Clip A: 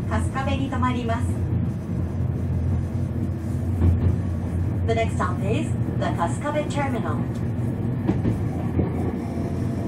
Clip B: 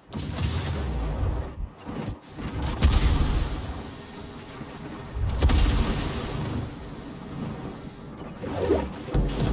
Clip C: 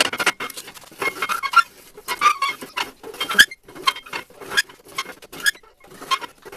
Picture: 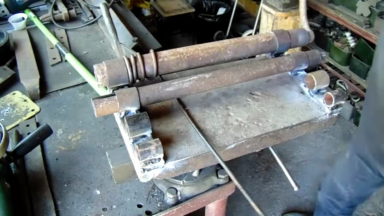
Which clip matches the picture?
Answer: C